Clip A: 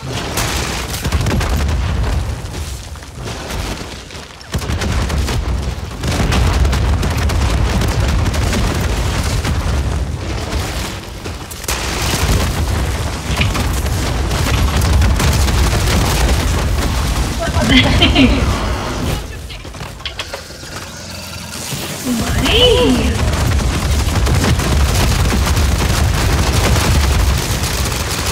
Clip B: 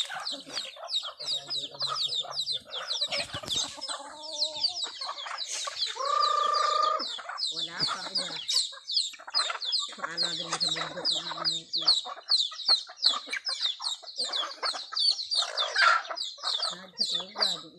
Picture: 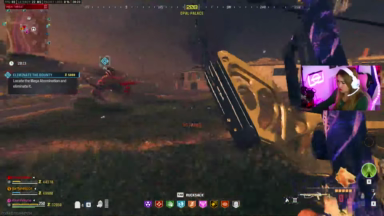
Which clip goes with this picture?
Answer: A